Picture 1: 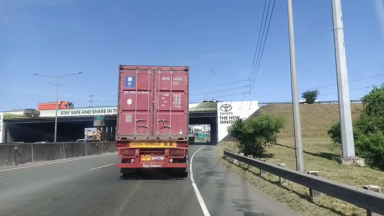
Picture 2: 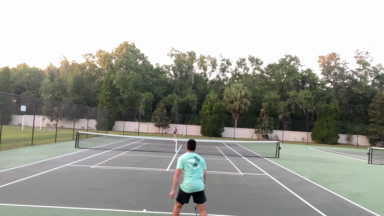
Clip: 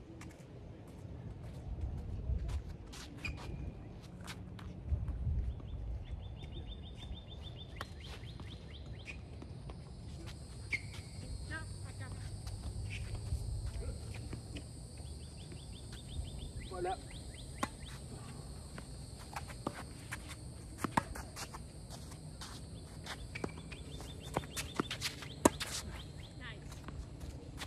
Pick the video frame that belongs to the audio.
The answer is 2